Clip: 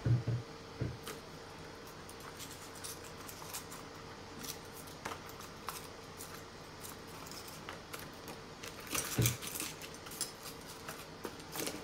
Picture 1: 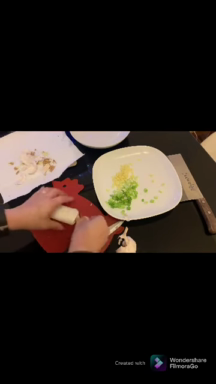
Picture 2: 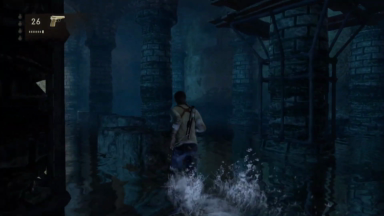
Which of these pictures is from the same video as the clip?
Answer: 1